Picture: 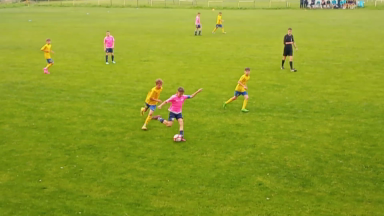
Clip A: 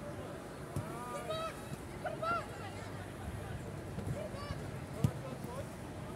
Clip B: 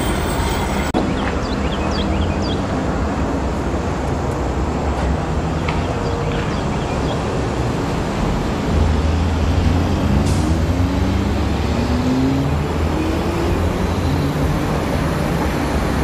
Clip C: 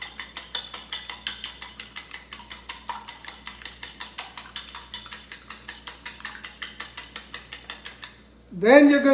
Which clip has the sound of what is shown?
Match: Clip A